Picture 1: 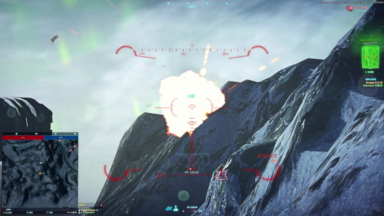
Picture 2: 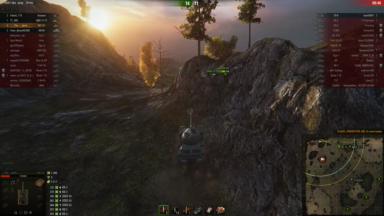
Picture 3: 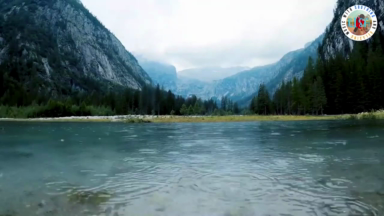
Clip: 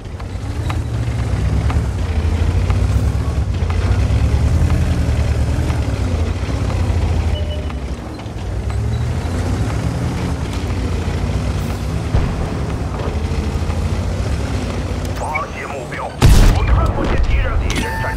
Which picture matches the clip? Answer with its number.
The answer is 2